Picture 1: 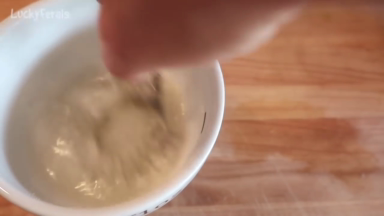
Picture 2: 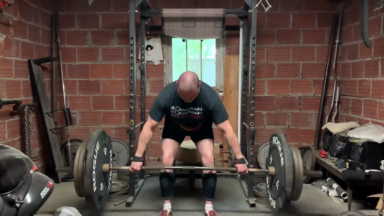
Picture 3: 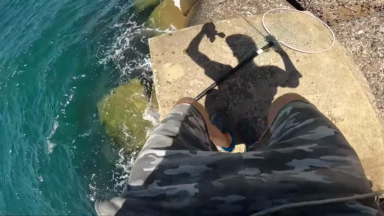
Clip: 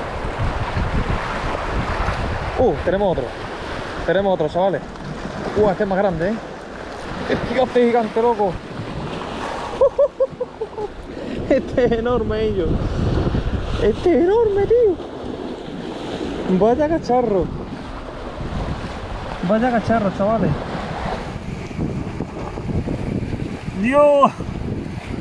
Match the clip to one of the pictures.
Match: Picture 3